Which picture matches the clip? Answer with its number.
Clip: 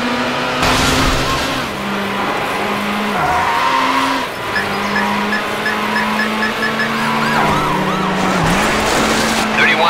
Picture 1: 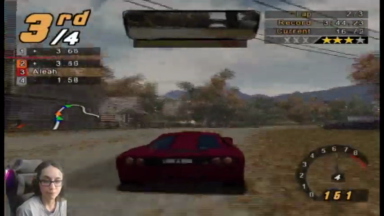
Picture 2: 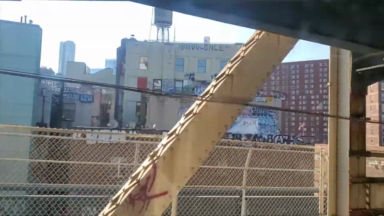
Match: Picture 1